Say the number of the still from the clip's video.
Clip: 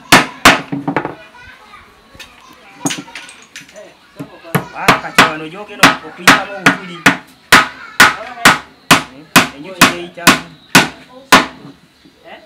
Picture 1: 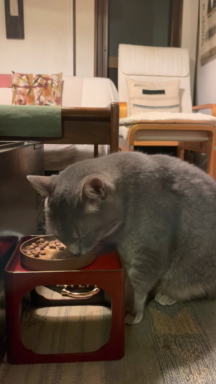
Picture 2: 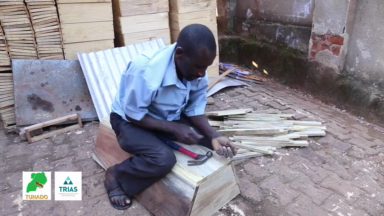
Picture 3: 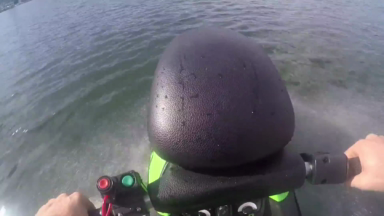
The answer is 2